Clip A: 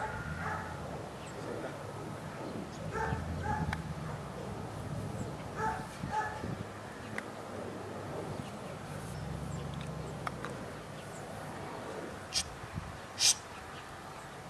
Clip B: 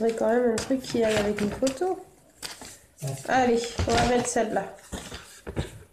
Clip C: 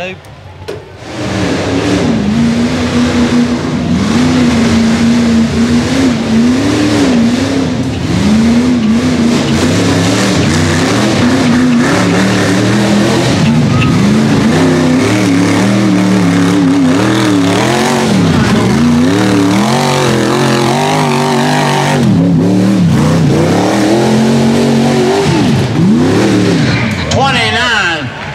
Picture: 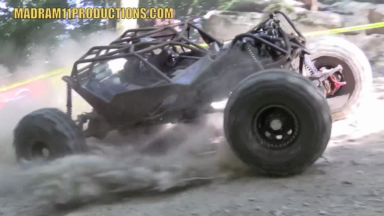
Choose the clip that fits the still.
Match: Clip C